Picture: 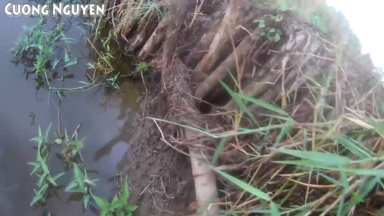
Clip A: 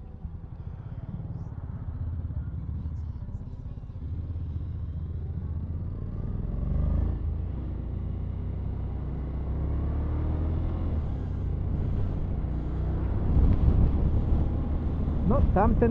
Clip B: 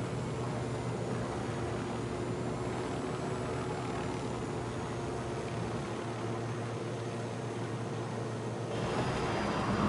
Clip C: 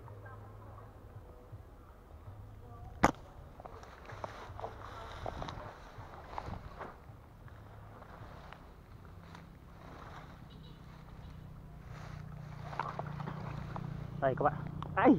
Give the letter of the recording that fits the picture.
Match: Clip C